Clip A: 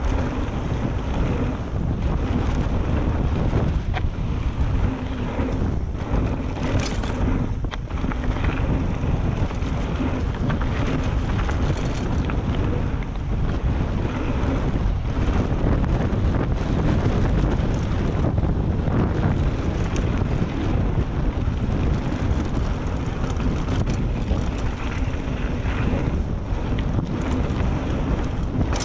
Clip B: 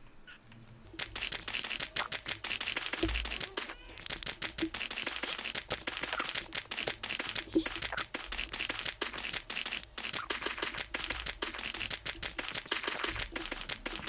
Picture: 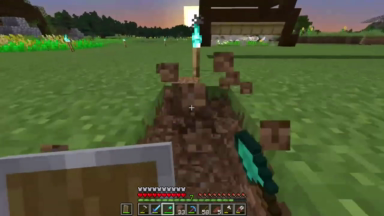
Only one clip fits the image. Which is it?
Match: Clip B